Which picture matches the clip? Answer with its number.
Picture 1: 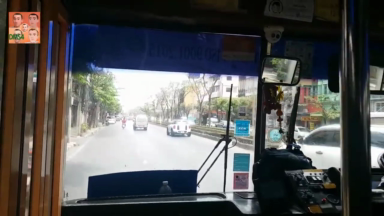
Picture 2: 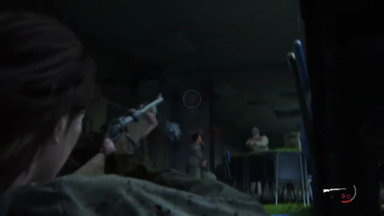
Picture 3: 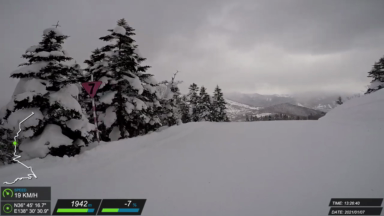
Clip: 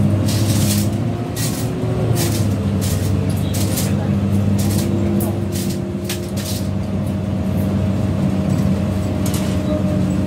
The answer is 1